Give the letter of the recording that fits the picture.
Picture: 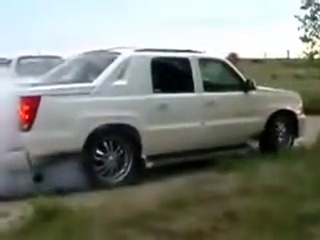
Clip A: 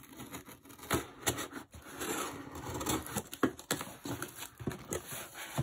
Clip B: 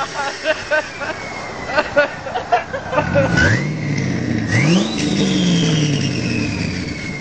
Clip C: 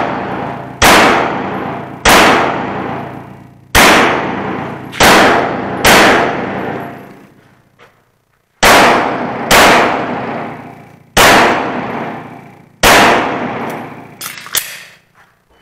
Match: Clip B